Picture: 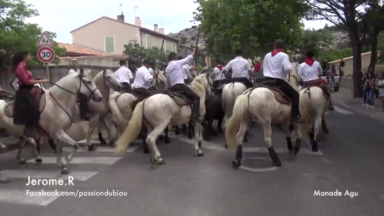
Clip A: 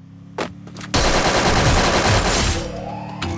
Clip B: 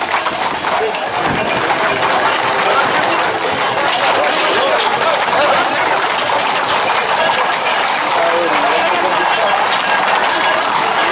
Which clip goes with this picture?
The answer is B